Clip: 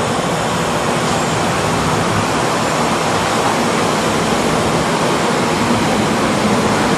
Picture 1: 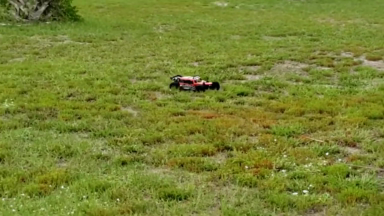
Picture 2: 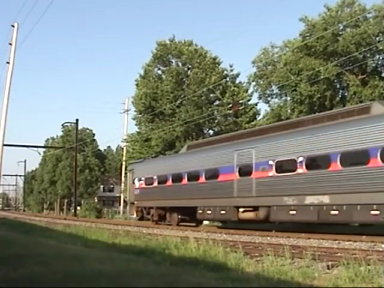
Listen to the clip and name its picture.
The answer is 2